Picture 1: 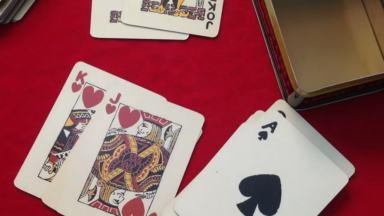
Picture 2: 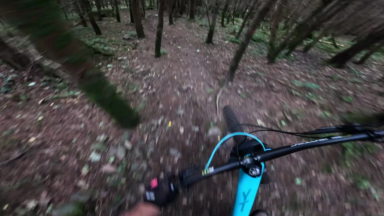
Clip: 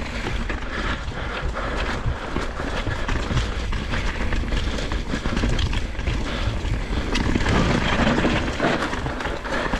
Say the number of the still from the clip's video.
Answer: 2